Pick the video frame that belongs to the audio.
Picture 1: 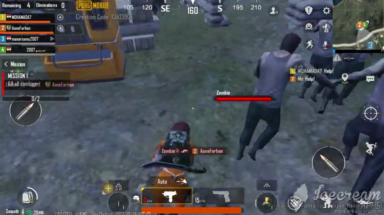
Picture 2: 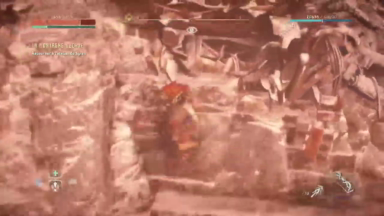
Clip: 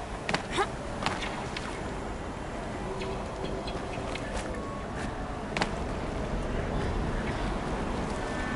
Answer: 2